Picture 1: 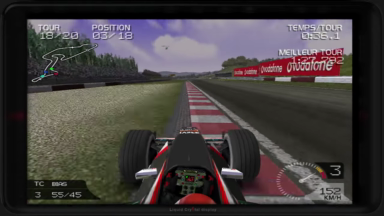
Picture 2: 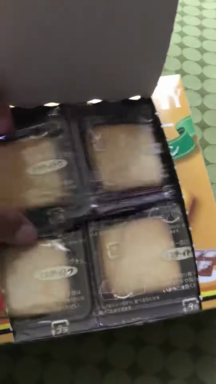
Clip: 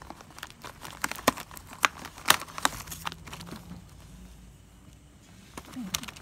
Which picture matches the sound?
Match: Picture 2